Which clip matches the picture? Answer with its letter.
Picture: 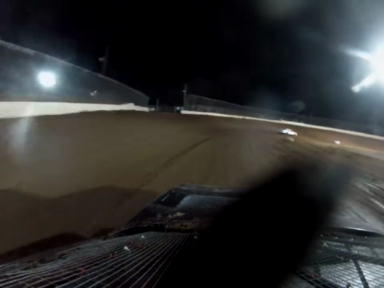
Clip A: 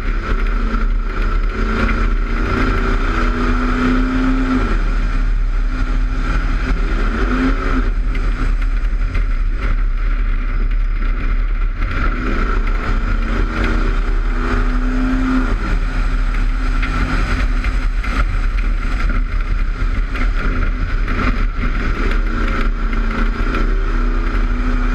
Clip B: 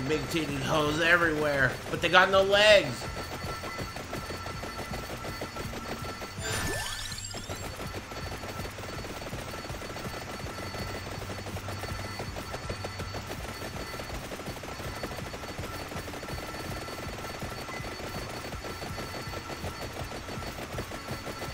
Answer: A